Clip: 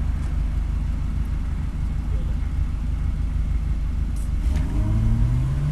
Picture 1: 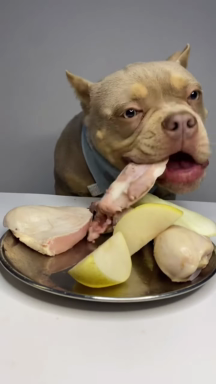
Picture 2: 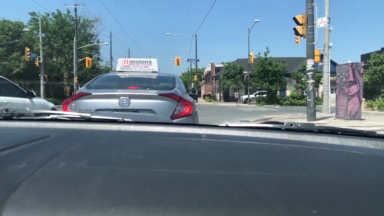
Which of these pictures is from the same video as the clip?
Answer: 2